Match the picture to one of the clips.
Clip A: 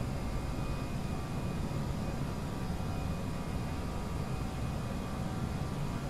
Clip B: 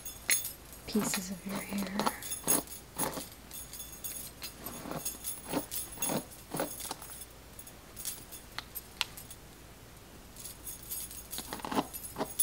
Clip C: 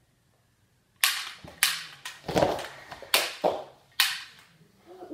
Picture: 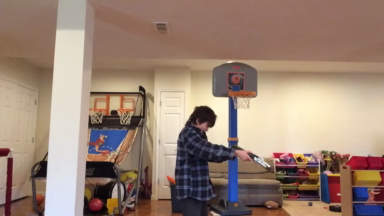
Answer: C